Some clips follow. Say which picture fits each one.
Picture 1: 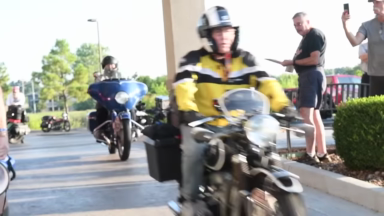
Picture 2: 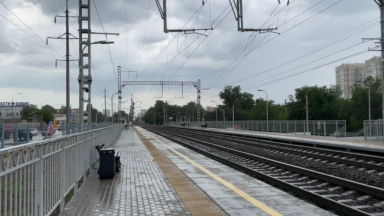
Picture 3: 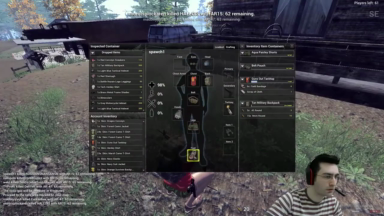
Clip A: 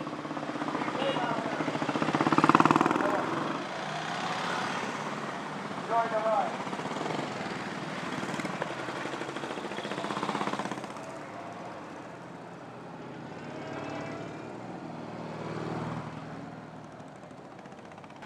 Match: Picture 1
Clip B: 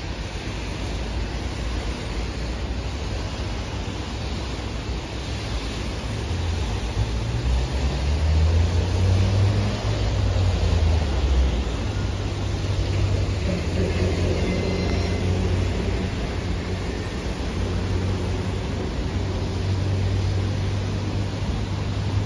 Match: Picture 2